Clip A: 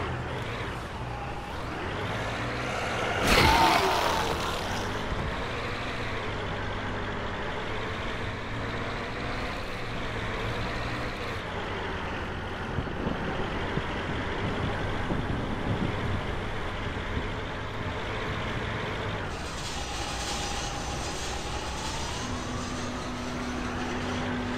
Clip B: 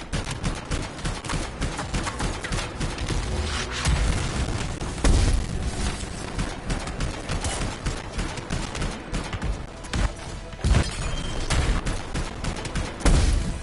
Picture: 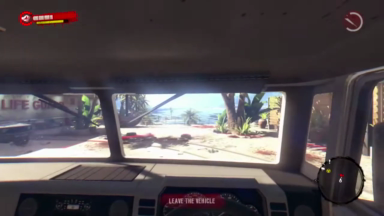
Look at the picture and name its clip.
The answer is A